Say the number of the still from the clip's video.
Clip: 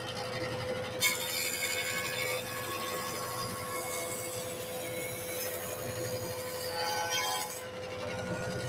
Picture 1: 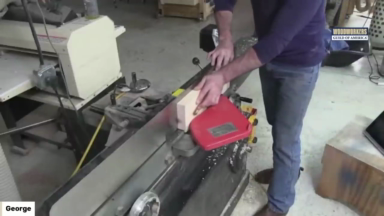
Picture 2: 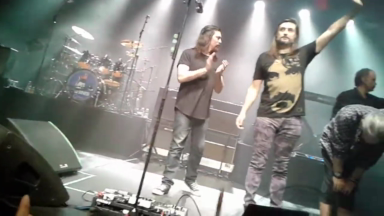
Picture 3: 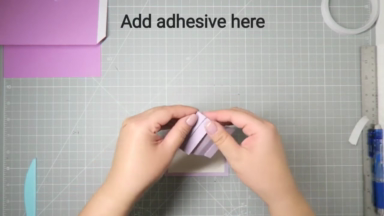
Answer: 1